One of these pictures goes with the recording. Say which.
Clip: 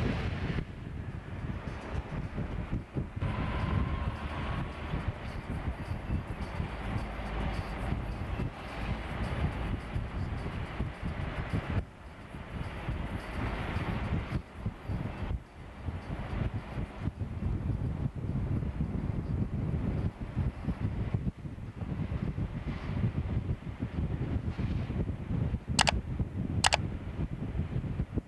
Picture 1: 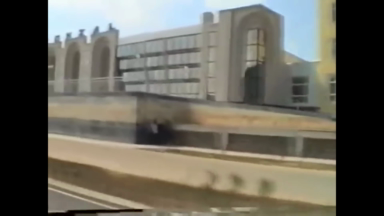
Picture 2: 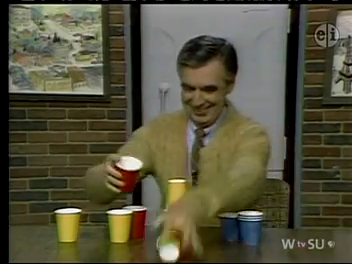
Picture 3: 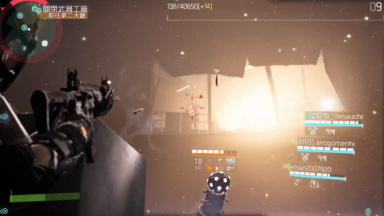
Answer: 1